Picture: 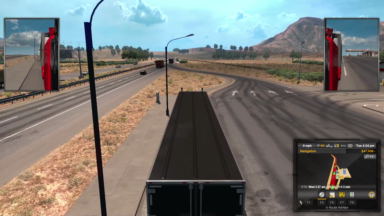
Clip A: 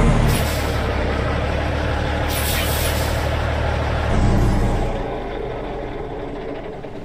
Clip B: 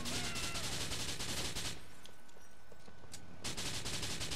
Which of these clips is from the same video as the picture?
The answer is A